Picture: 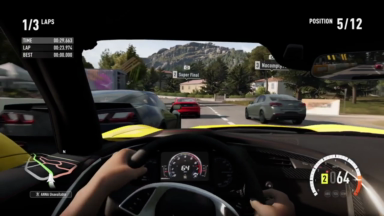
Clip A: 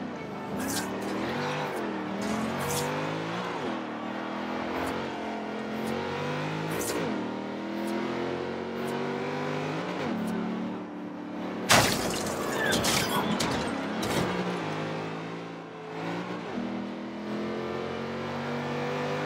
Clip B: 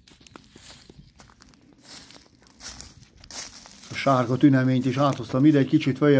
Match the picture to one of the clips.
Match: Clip A